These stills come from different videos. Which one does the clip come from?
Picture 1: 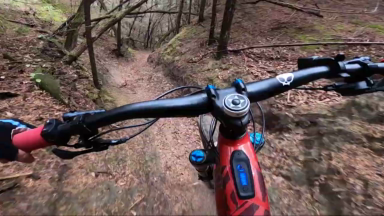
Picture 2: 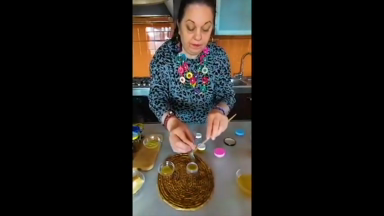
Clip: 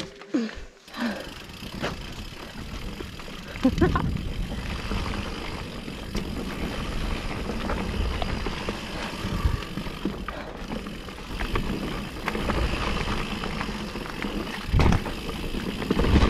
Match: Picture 1